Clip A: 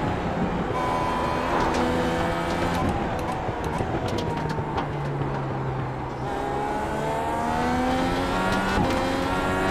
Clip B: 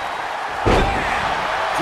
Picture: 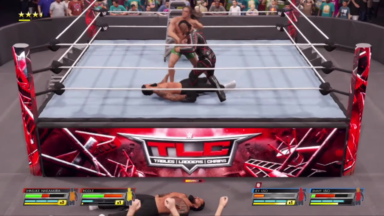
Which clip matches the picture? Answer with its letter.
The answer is B